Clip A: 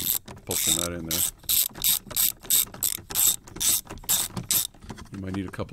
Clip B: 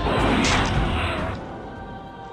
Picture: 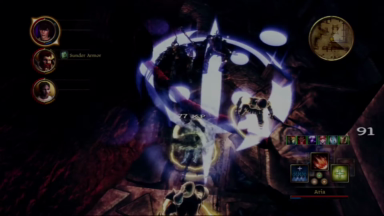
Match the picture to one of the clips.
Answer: B